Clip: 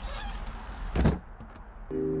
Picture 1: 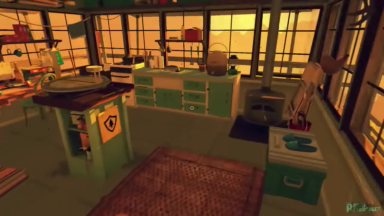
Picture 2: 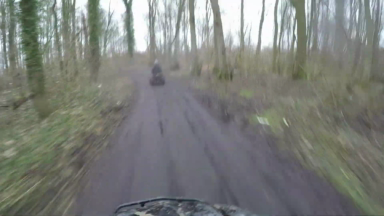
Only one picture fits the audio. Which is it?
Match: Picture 1